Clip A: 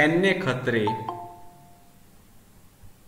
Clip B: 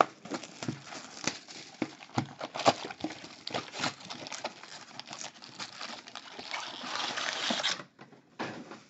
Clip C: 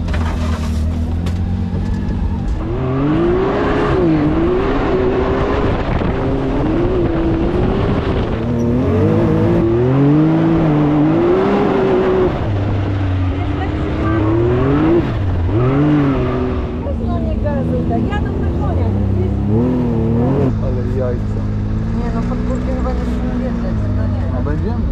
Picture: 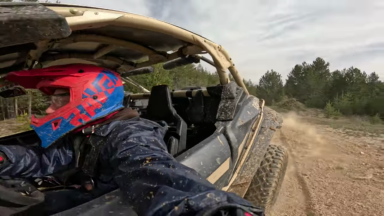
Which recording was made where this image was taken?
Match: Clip C